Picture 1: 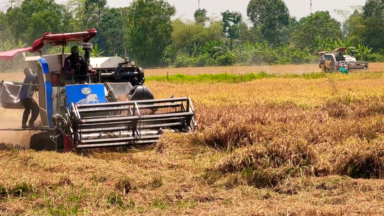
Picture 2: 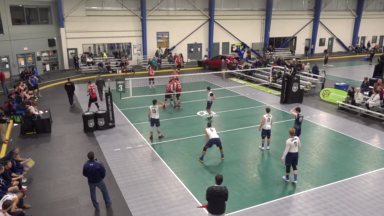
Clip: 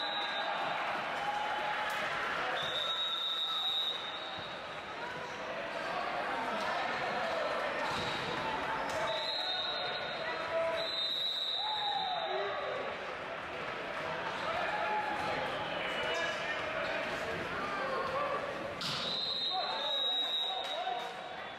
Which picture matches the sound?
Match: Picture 2